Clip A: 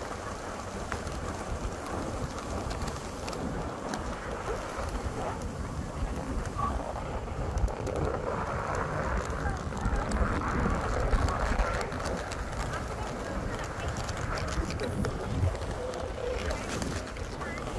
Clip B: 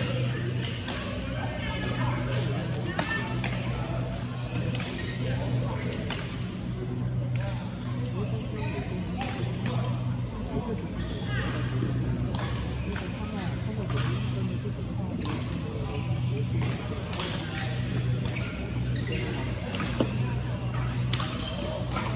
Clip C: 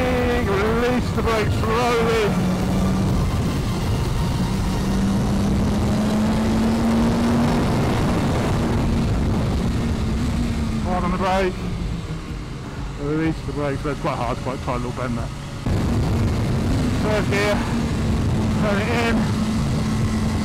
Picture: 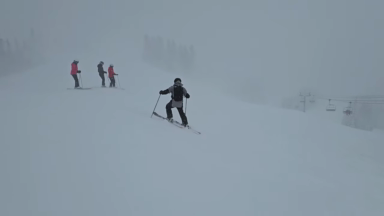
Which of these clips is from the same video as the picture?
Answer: A